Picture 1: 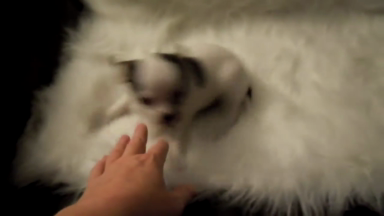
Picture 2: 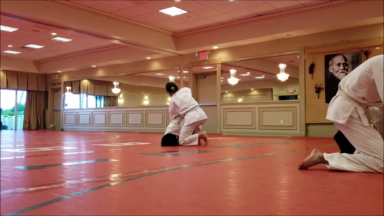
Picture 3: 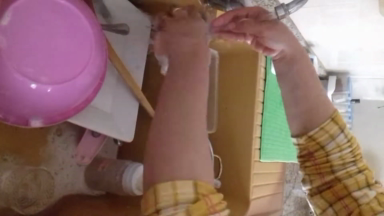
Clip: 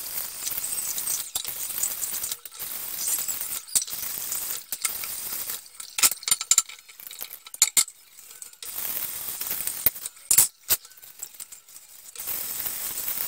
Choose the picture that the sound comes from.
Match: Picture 3